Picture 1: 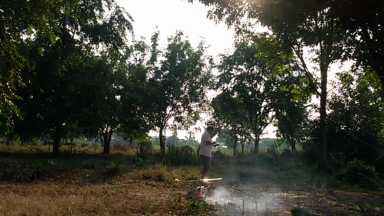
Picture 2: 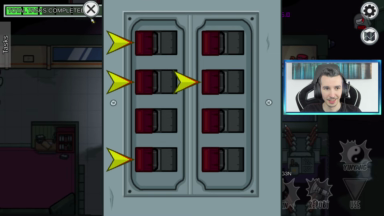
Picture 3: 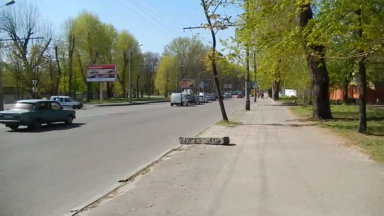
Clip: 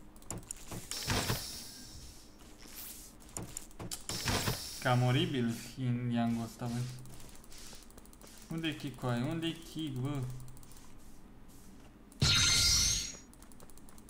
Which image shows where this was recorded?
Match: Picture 2